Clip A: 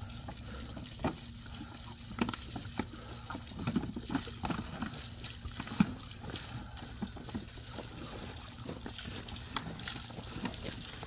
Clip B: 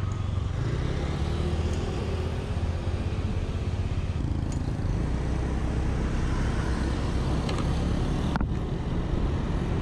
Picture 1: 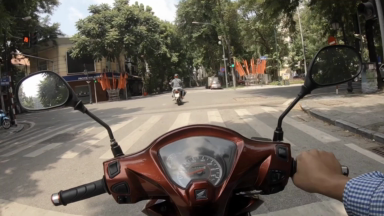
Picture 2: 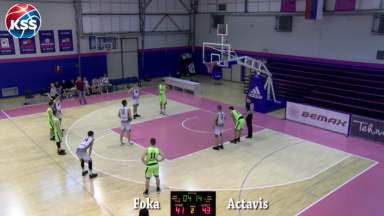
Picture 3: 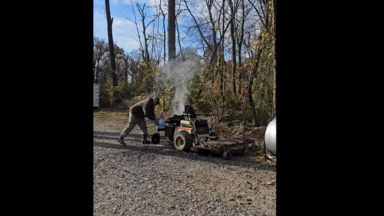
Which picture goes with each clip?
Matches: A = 3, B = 1